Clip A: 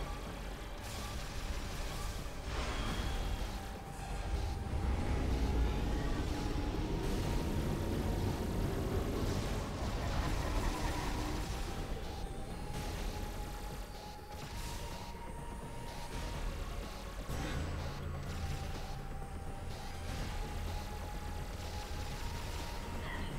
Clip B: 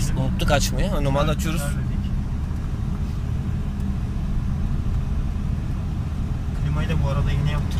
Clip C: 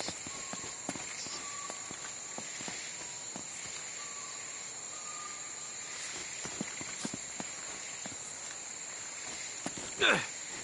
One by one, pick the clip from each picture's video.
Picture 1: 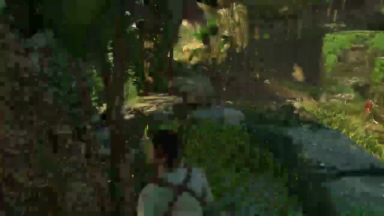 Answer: C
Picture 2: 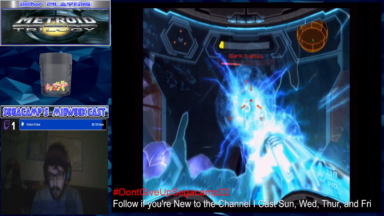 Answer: A